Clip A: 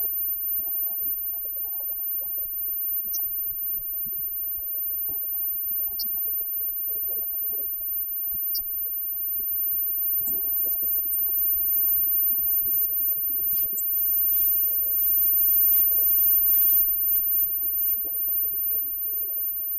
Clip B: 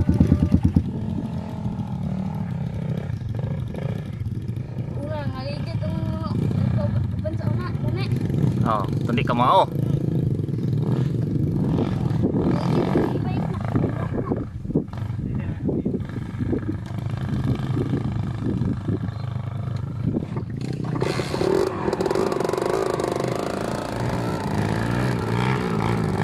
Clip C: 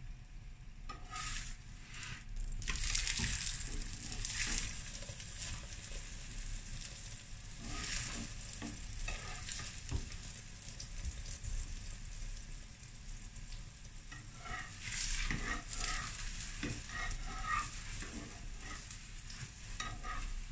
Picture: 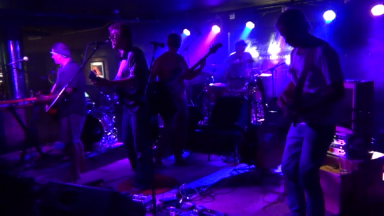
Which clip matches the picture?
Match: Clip A